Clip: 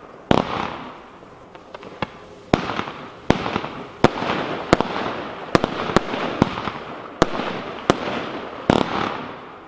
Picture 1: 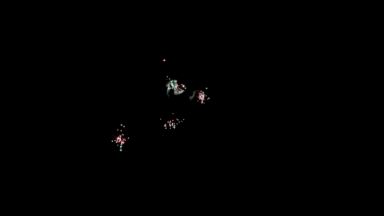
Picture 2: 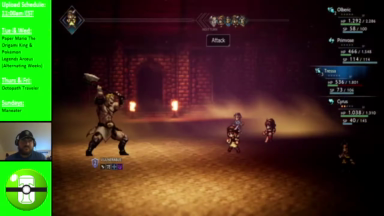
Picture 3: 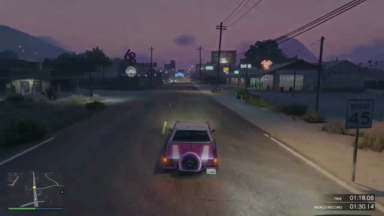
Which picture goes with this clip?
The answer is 1